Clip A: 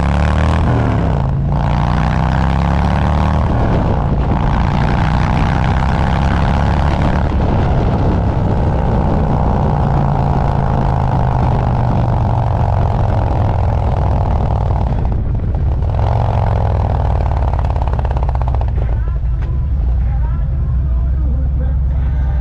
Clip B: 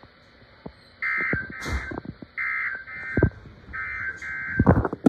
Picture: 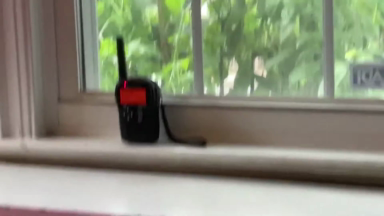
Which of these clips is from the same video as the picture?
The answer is B